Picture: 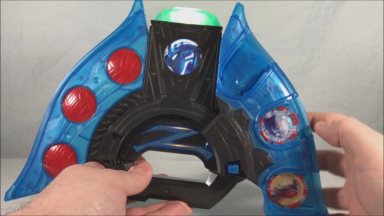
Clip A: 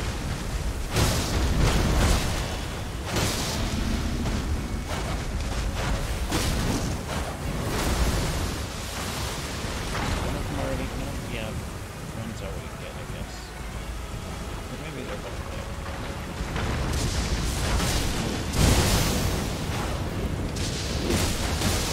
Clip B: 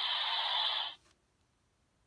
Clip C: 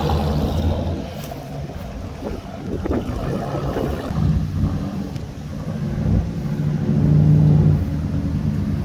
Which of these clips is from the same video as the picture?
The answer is B